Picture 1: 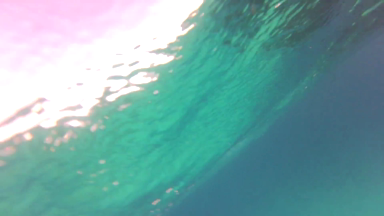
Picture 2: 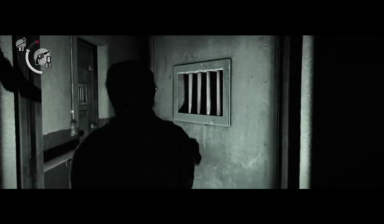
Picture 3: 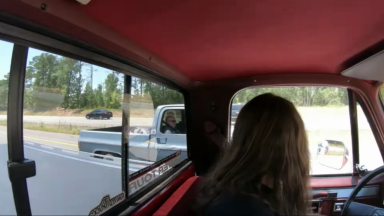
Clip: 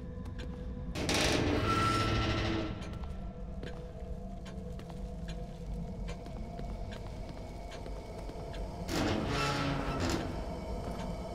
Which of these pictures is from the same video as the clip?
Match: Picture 2